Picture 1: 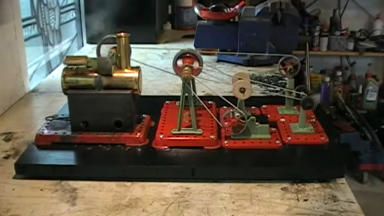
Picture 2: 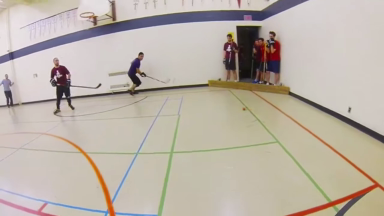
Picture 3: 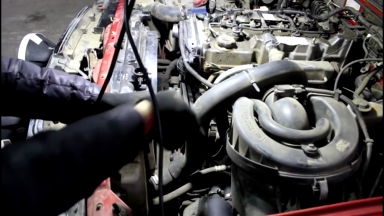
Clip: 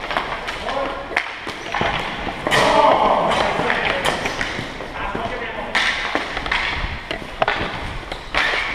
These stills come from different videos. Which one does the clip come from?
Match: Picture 2